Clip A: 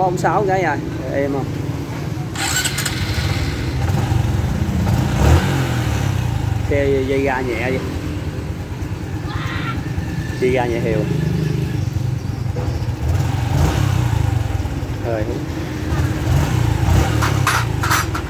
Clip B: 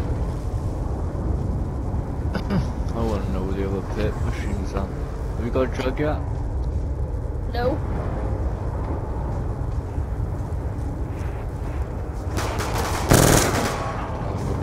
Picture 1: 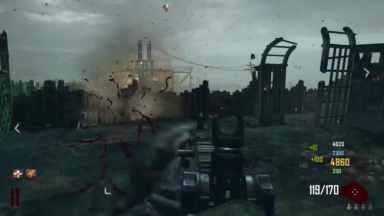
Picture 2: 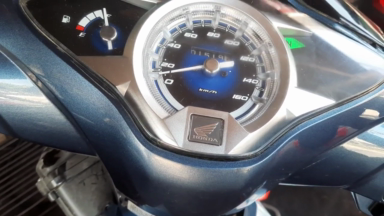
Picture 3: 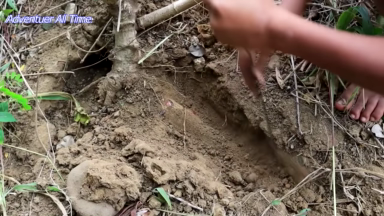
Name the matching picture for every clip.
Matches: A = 2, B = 1